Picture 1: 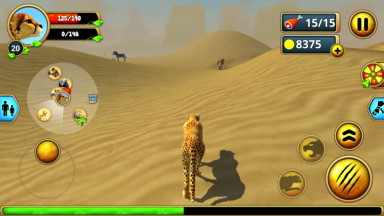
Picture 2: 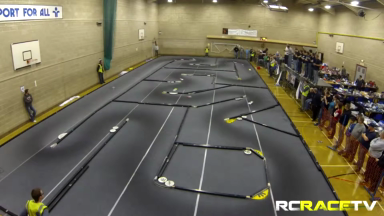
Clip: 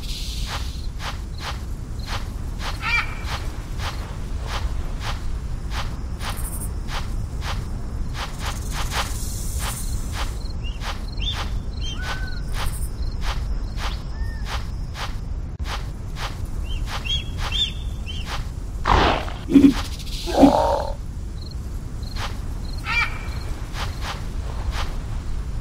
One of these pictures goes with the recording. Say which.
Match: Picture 1